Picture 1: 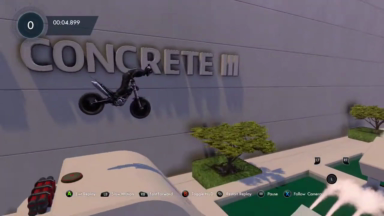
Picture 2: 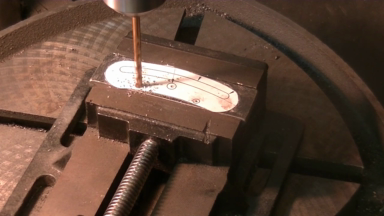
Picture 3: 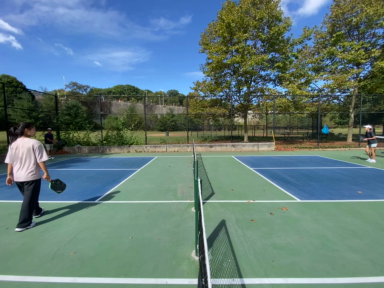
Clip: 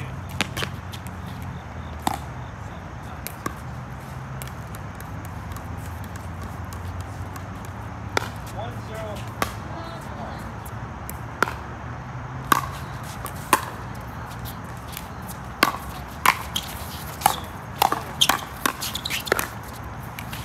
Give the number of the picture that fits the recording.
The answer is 3